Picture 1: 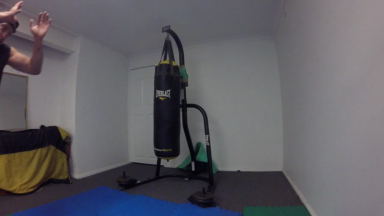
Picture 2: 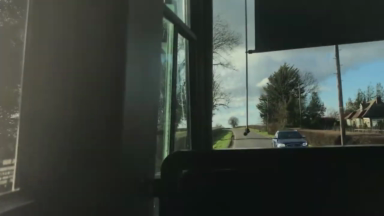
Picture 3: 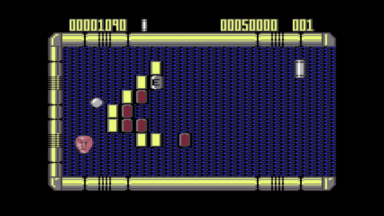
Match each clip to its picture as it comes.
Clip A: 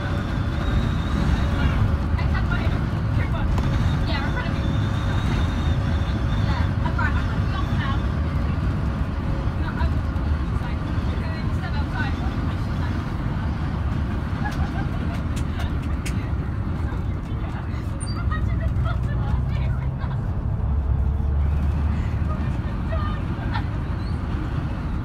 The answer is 2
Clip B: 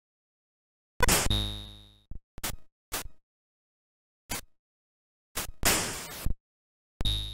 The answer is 3